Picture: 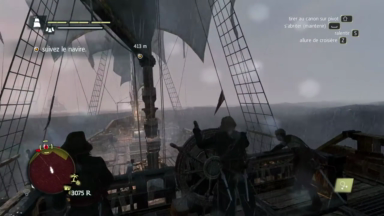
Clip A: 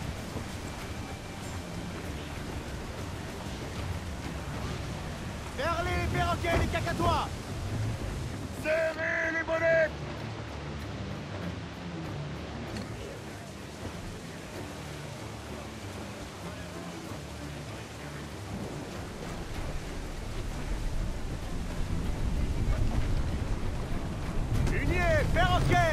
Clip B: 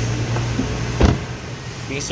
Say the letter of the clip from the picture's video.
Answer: A